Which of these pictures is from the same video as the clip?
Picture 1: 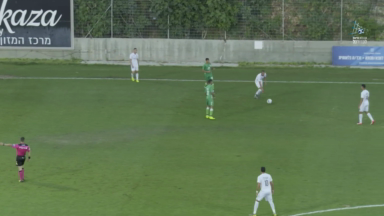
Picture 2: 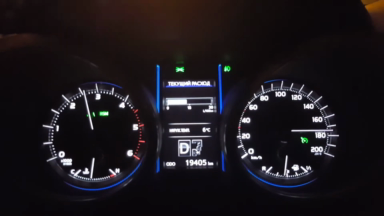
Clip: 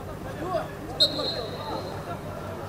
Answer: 1